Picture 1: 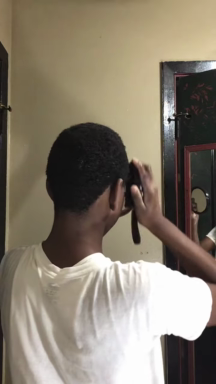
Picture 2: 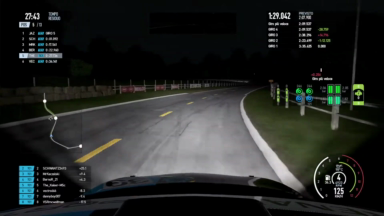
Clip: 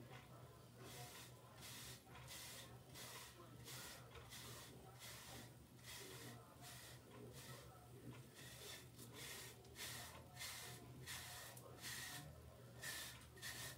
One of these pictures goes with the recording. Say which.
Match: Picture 1